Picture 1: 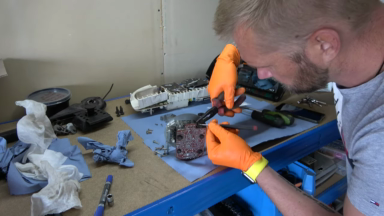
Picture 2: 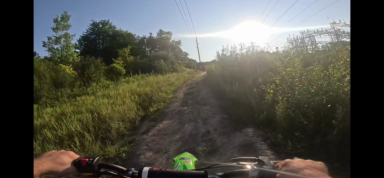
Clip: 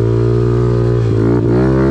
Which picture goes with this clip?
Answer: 2